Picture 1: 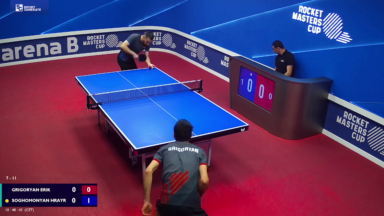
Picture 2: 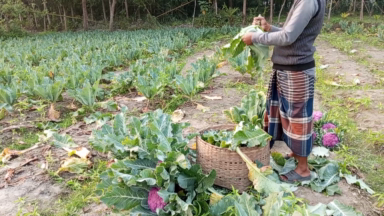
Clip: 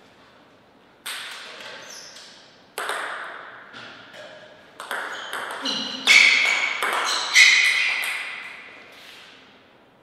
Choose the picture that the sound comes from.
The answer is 1